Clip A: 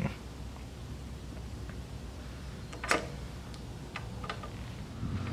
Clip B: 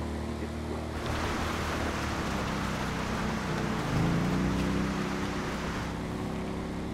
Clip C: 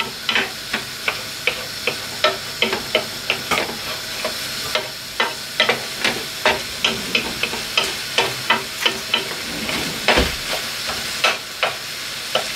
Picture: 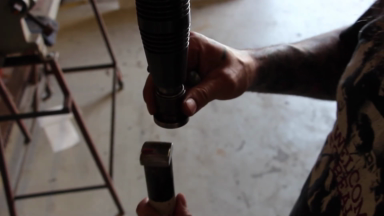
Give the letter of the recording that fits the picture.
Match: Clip A